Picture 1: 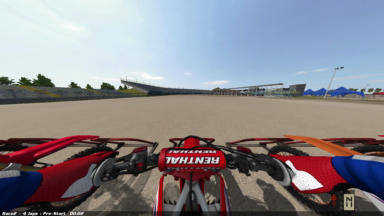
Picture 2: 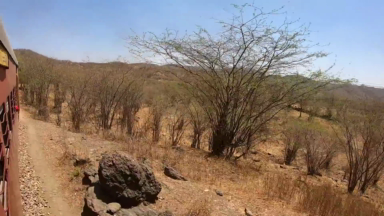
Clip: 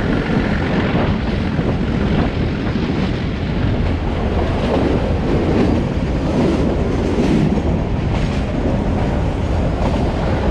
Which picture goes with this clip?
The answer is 2